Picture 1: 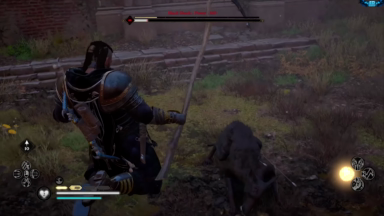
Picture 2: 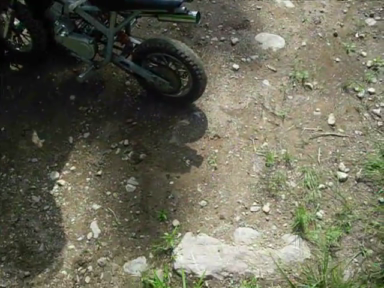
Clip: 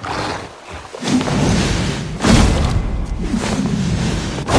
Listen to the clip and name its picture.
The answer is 1